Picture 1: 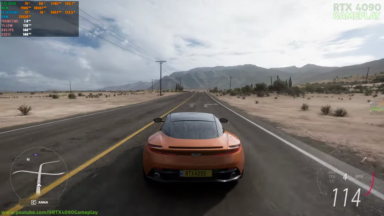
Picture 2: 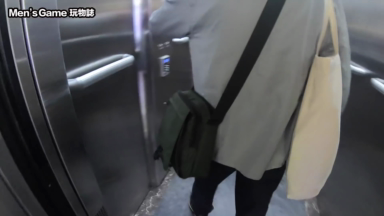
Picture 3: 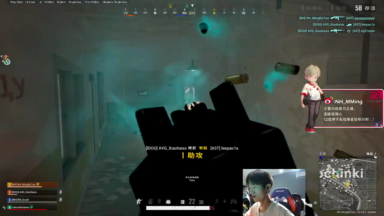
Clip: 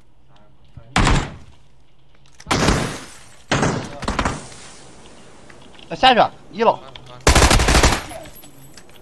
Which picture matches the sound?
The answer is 3